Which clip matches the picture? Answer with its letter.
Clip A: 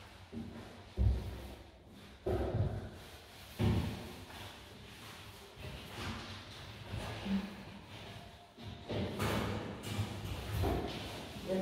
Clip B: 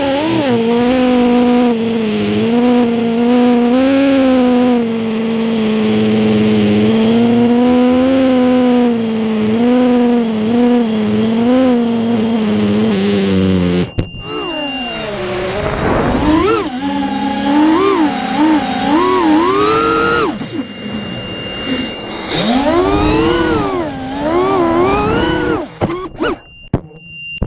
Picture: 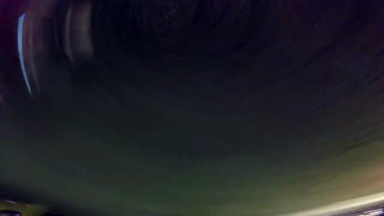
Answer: B